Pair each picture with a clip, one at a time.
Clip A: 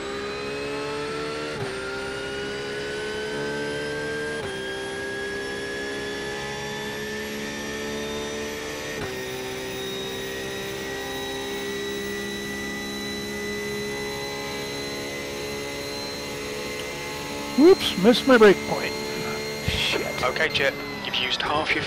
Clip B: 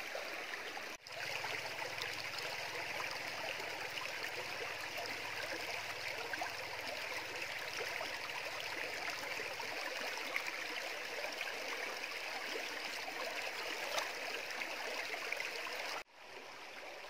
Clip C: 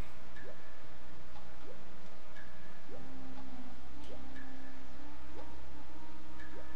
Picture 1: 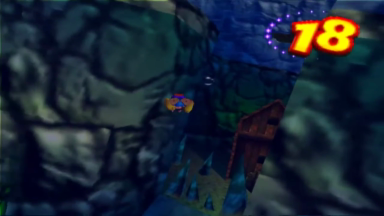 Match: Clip C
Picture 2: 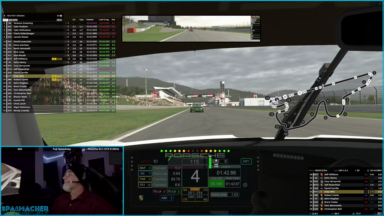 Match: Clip A